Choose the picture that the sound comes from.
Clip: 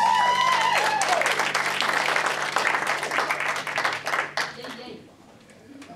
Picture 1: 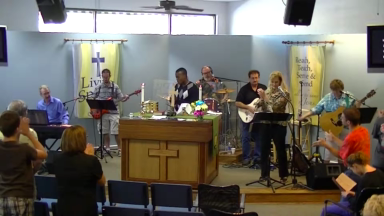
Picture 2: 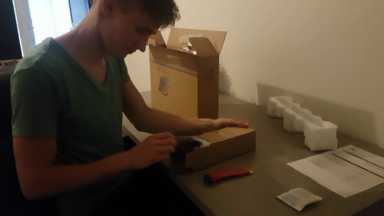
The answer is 1